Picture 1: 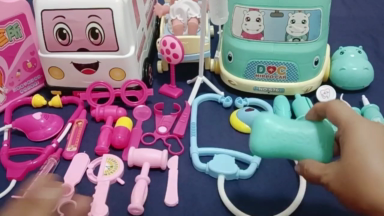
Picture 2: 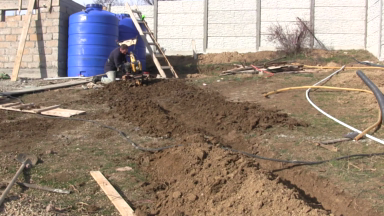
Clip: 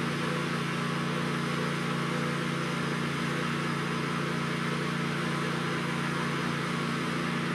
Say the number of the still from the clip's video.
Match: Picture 2